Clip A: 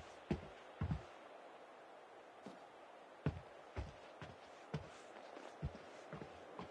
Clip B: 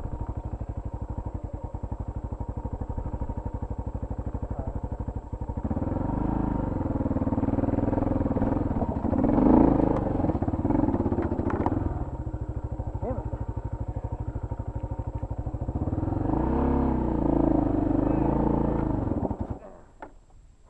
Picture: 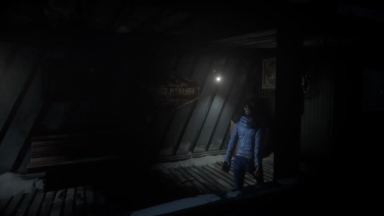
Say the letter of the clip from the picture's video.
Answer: A